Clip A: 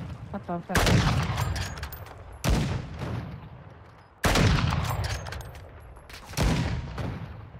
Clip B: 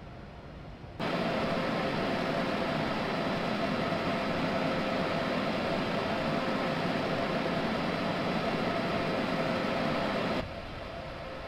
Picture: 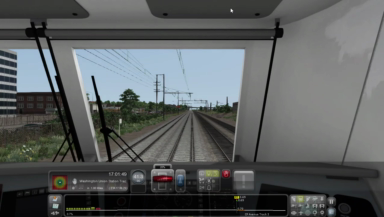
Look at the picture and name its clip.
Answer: B